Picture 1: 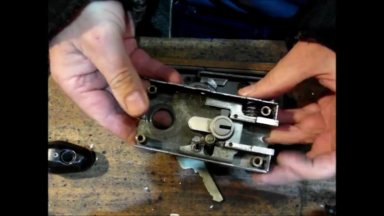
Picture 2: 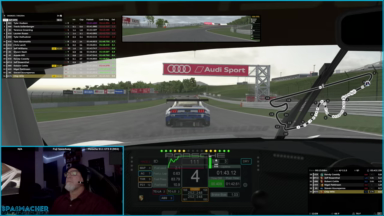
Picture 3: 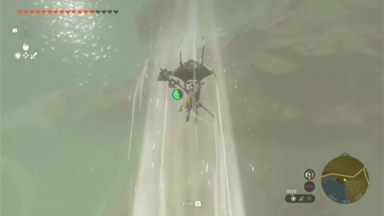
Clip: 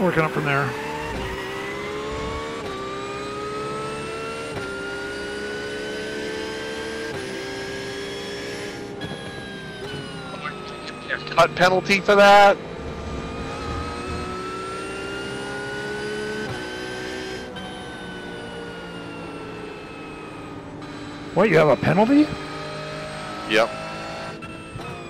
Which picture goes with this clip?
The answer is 2